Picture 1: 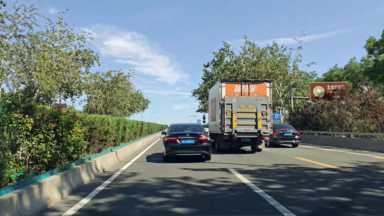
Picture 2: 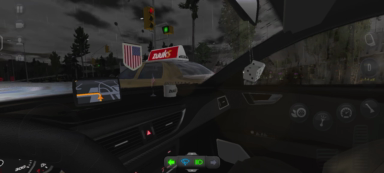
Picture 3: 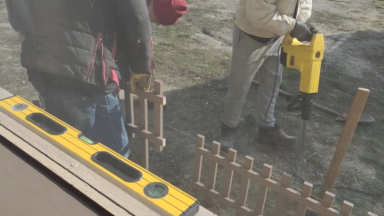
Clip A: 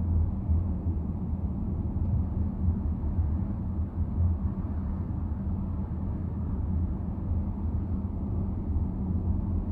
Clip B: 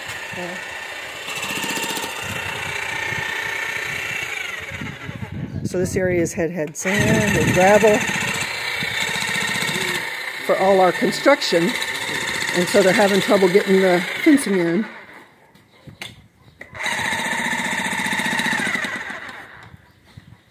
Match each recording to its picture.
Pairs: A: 1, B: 3